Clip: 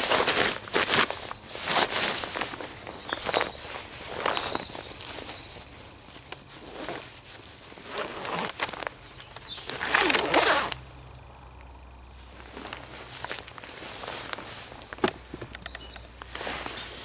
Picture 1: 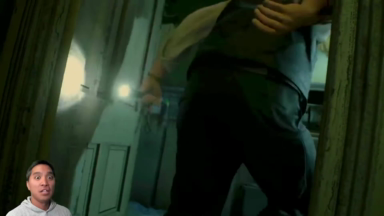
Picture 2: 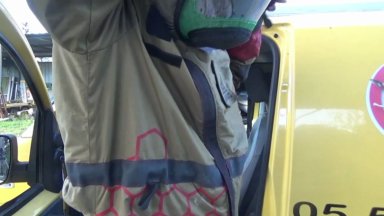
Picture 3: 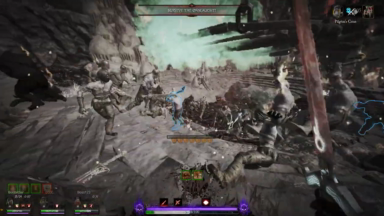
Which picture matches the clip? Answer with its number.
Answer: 2